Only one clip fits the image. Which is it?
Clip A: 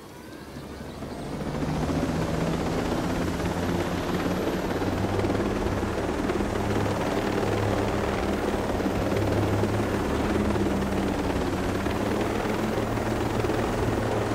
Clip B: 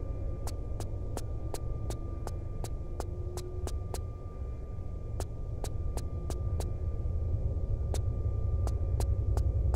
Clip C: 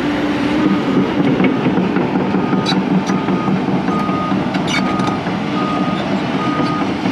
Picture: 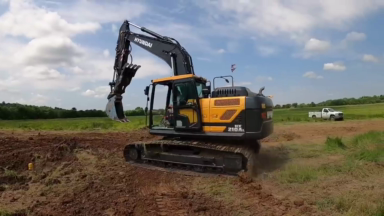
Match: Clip C